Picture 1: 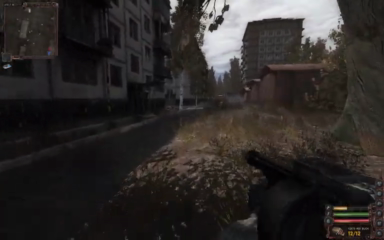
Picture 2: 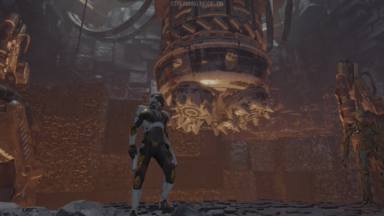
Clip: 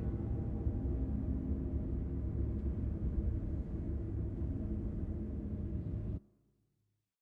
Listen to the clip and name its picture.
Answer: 2